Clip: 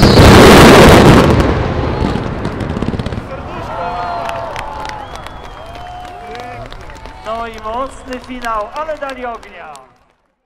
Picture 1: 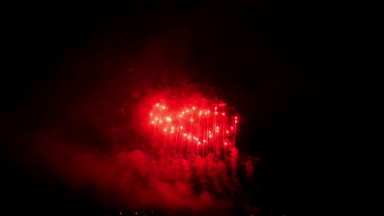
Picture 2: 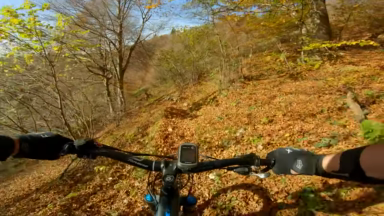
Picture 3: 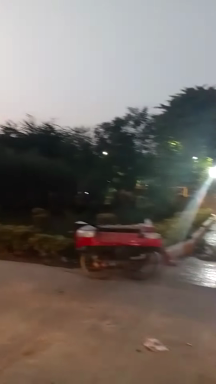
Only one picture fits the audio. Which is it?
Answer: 1